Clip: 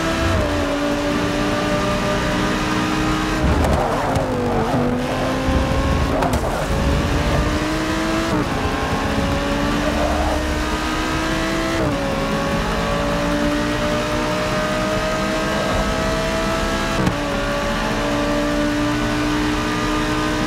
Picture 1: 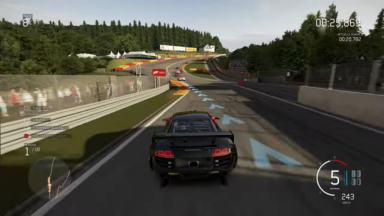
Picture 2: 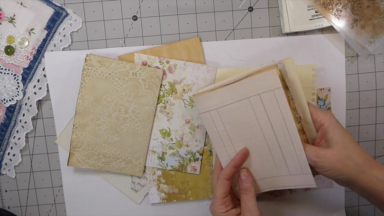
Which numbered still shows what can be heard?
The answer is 1